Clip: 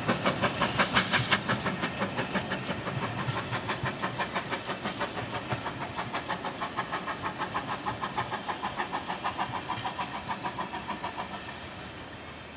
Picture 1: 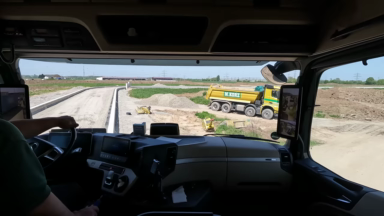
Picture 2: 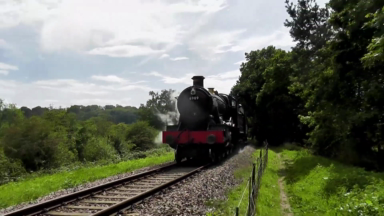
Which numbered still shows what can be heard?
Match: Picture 2